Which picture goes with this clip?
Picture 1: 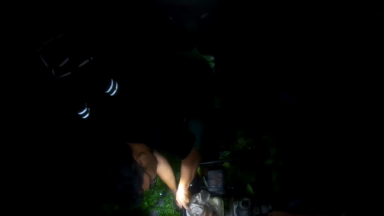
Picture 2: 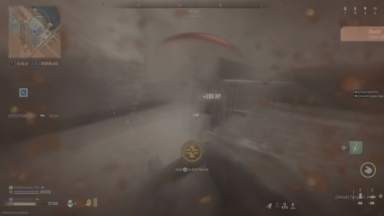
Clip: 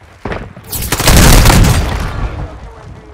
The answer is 2